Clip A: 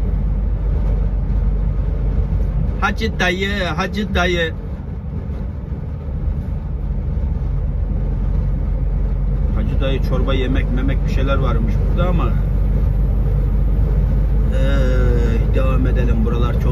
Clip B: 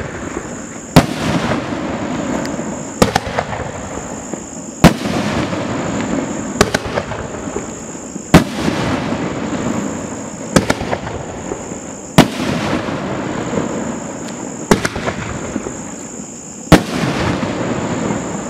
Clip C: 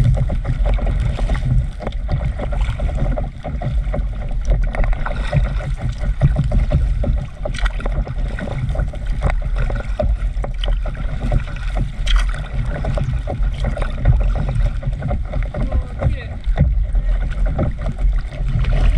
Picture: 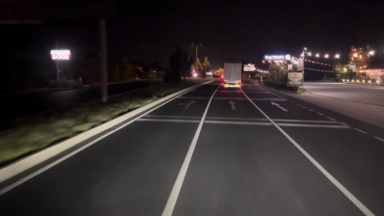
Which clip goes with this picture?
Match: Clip A